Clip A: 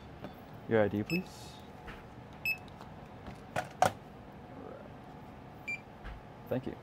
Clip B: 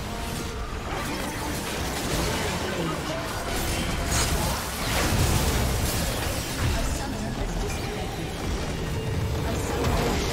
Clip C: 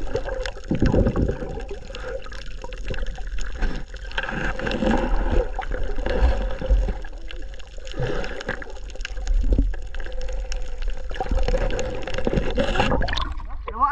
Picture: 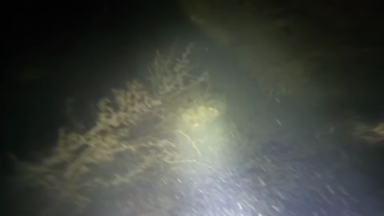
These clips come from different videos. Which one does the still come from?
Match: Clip C